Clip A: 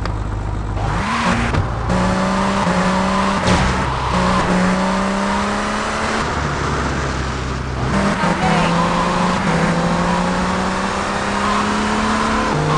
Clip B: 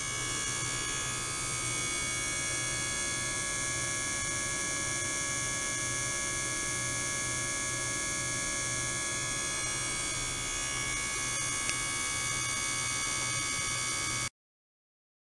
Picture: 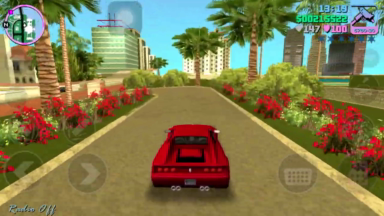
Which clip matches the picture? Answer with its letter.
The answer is A